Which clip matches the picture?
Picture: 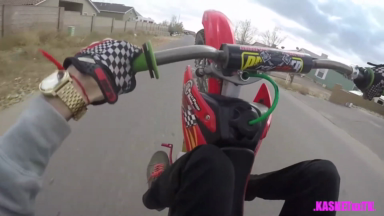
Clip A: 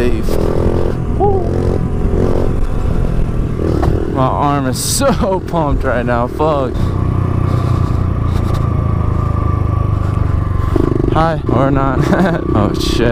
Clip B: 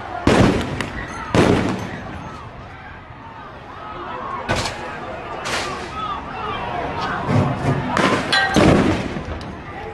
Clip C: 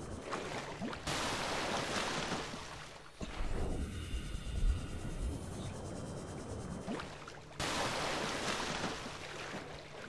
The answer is A